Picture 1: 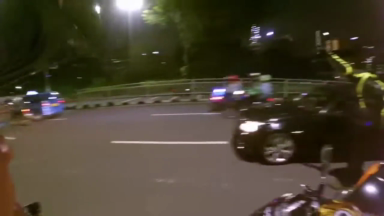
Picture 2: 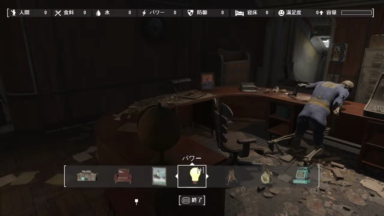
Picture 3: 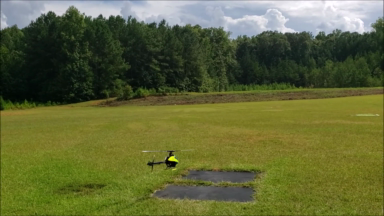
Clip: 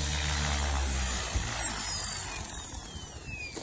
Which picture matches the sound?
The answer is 3